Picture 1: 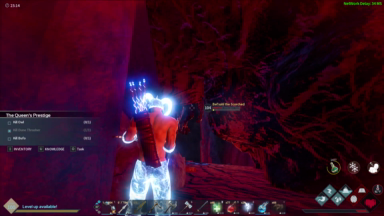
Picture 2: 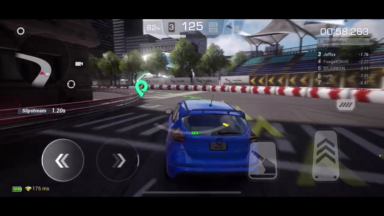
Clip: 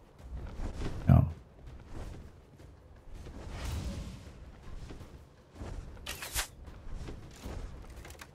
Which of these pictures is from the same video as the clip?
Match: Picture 1